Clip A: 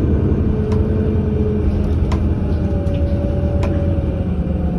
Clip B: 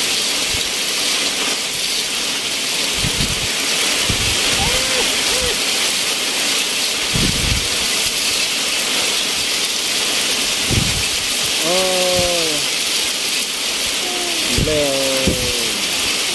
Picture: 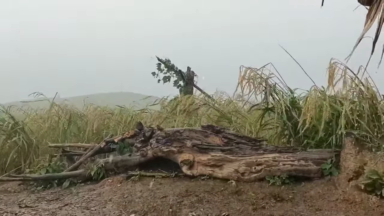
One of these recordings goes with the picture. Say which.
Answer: B